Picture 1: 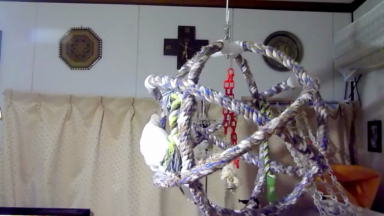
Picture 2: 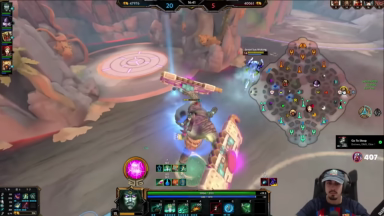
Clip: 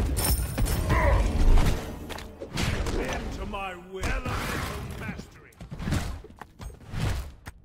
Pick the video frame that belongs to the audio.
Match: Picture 2